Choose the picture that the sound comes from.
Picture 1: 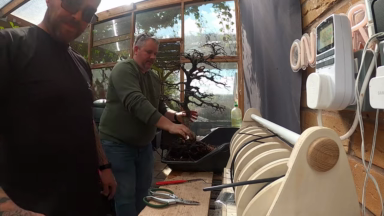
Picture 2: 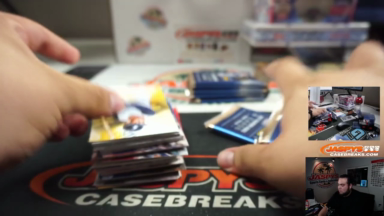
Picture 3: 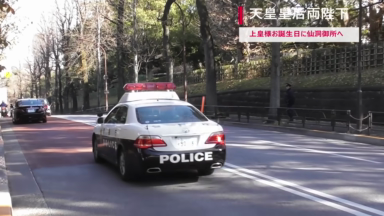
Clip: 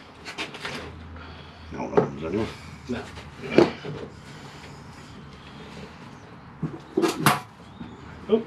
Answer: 1